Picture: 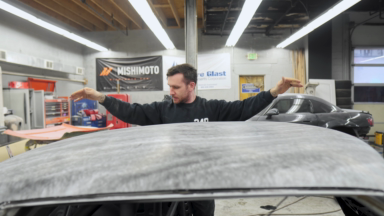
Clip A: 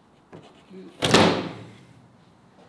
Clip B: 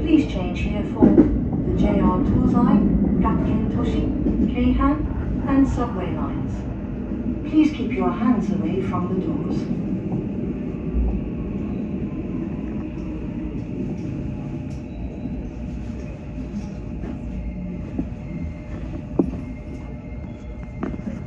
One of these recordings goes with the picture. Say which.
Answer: A